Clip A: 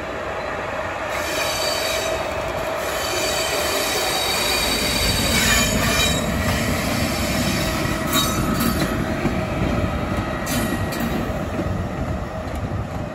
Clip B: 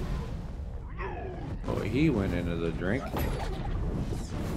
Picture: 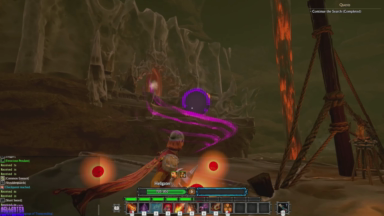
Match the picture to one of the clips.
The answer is B